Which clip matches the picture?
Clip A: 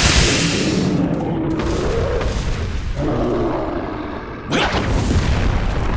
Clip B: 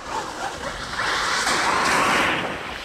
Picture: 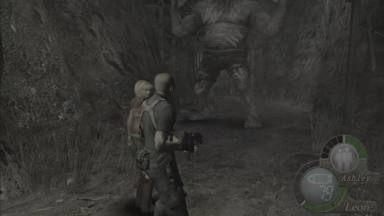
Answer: A